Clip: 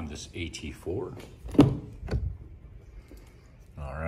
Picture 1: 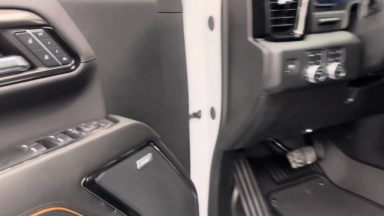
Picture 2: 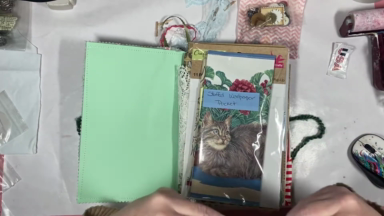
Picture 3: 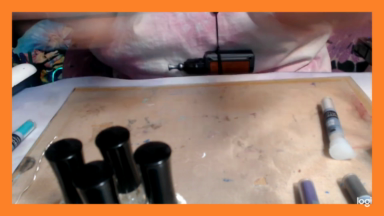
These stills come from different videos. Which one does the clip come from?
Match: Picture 1